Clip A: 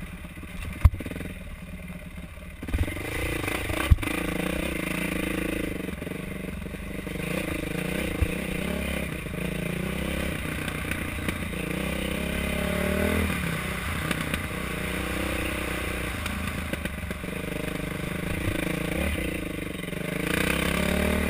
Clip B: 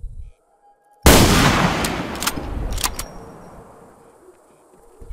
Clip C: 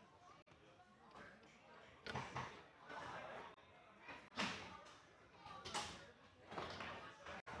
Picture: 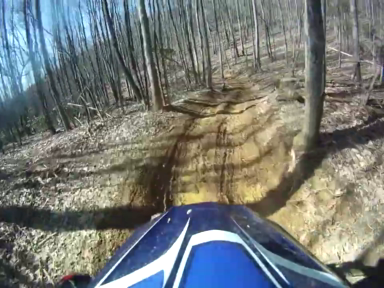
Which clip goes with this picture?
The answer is A